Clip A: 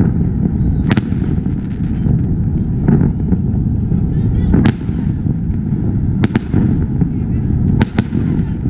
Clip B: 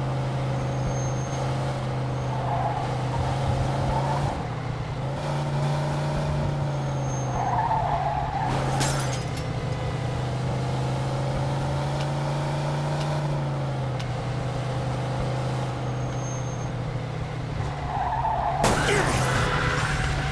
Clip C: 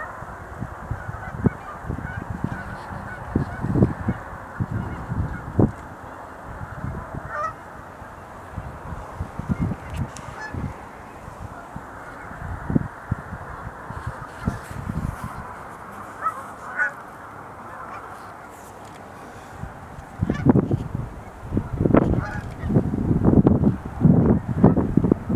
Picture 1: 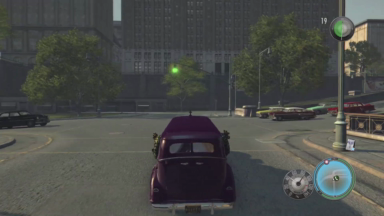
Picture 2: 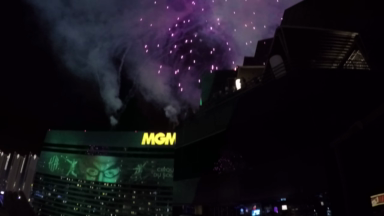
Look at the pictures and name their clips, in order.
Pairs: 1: B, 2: A